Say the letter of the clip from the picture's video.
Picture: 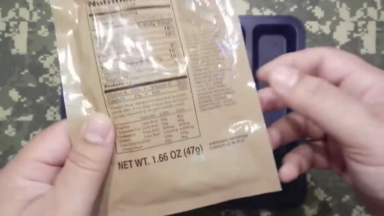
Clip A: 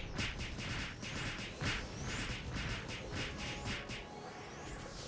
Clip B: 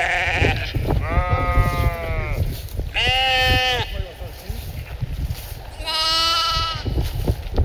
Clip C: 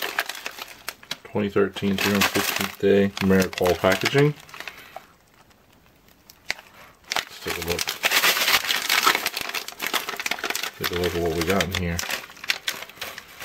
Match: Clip C